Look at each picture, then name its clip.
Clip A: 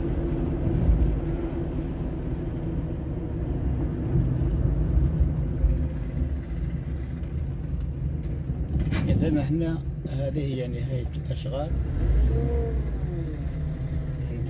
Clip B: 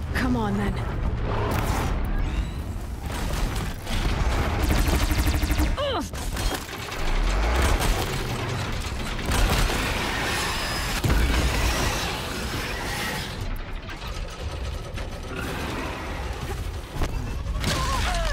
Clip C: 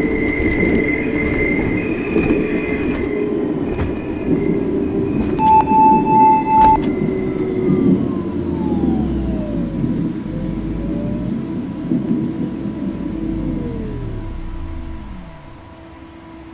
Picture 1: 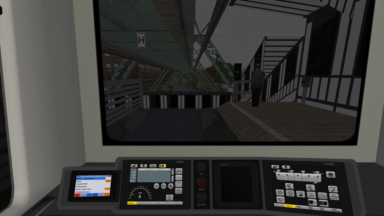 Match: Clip C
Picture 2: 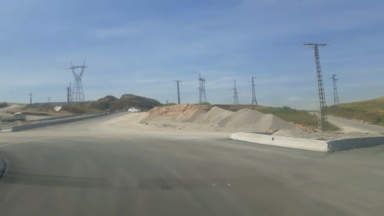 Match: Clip A